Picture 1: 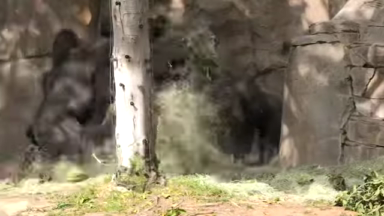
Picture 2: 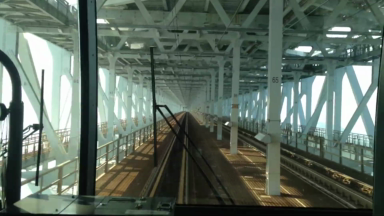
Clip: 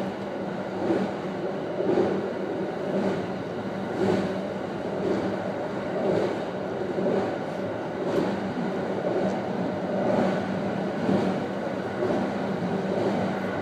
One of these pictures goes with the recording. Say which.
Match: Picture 2